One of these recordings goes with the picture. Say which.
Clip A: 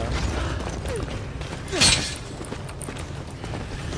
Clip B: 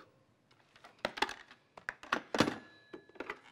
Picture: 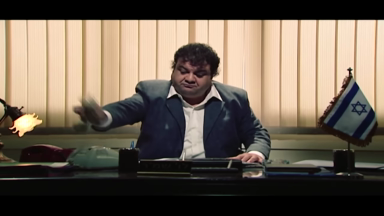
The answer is B